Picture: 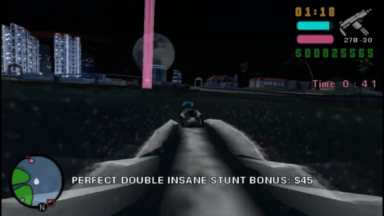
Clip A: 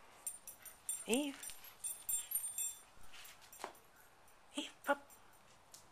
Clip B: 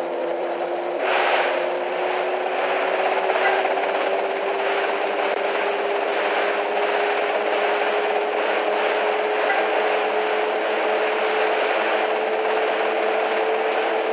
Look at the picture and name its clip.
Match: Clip B